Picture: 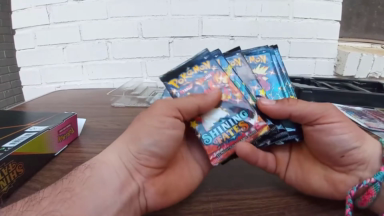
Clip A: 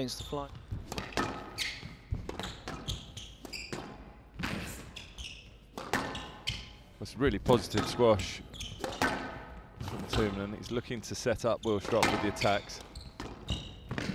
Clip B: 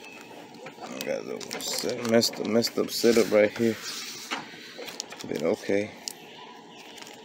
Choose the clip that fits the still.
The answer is B